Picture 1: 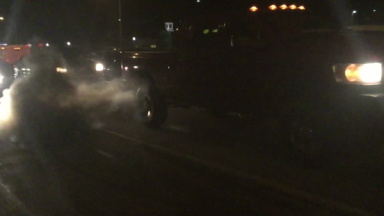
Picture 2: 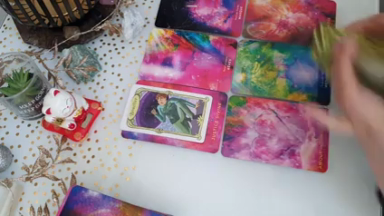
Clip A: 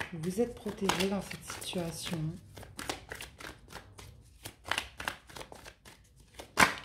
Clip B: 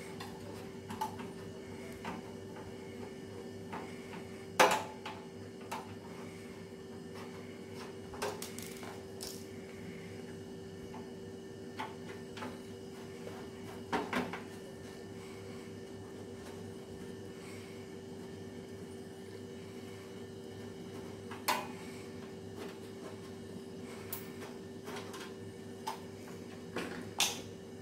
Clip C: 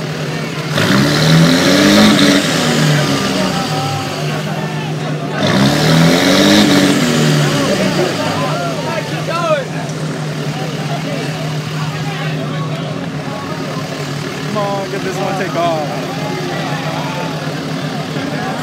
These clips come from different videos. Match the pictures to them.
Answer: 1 C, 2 A